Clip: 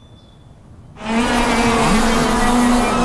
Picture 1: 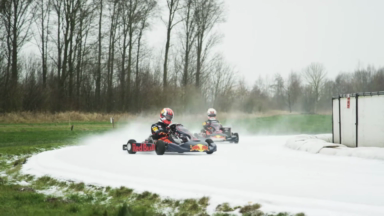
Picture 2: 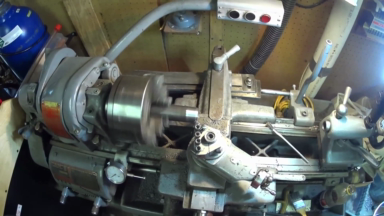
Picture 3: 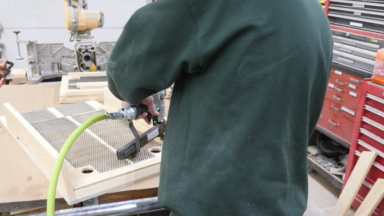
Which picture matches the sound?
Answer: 1